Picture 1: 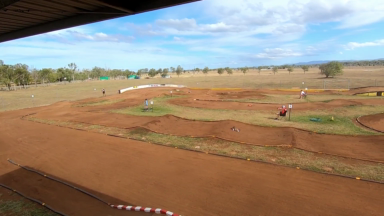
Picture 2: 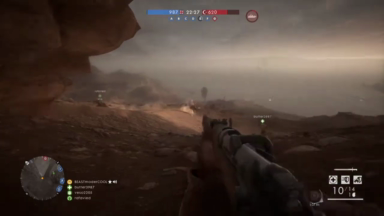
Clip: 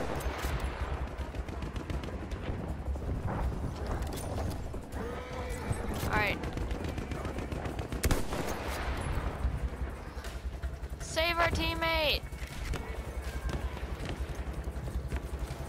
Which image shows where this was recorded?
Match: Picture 2